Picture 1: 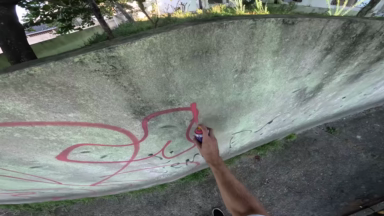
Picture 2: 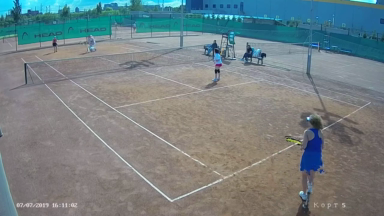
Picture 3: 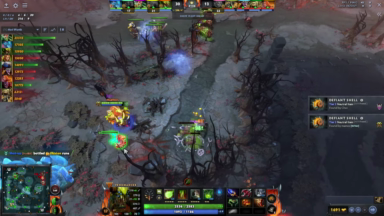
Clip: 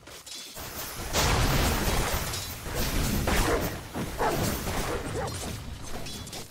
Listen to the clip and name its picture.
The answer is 3